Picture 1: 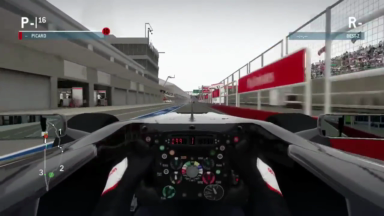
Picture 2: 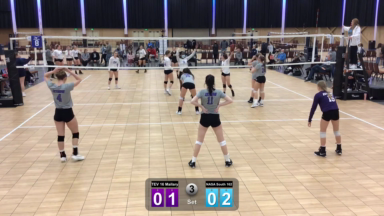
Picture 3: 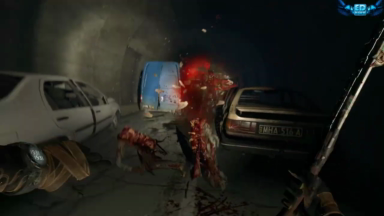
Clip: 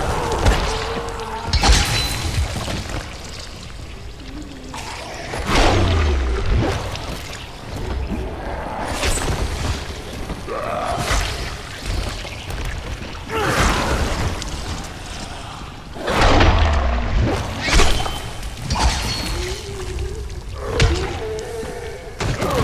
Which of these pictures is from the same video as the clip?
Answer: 3